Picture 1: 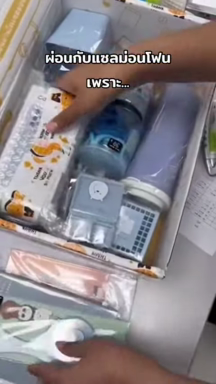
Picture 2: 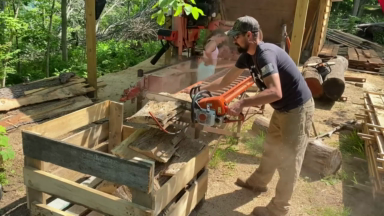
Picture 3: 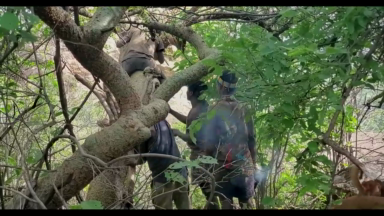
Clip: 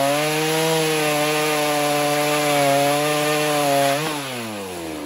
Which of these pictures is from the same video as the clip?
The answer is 2